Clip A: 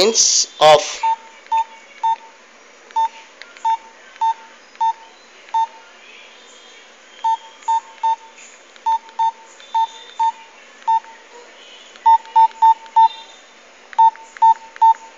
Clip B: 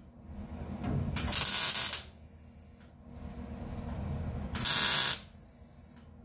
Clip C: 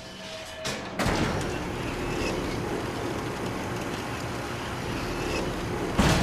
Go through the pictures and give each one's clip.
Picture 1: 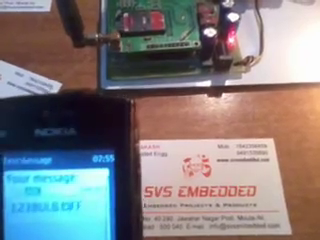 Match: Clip A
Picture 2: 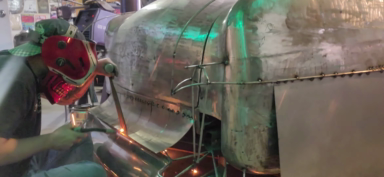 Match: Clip B